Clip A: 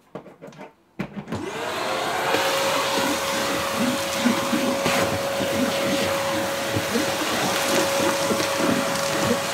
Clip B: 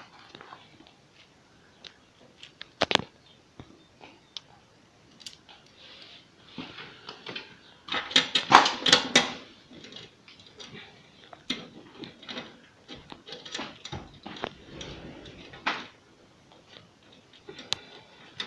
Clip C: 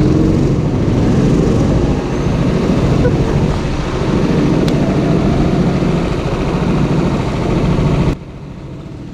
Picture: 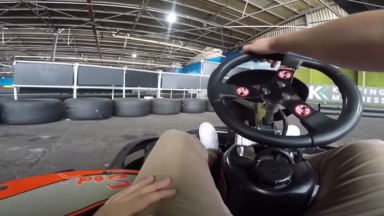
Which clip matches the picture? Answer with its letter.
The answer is C